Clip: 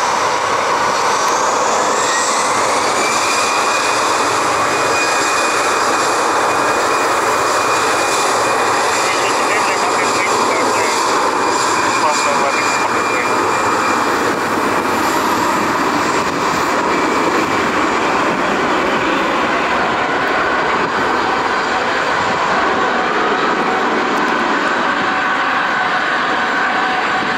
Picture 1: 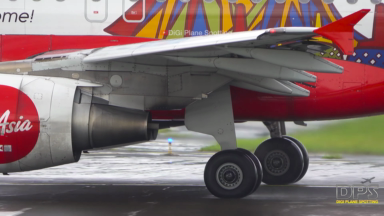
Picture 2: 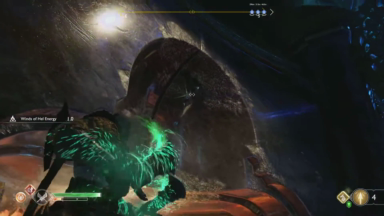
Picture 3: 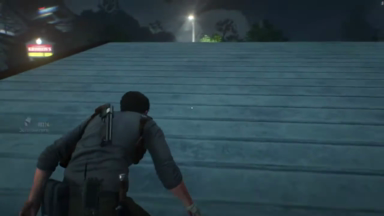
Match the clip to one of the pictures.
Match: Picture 1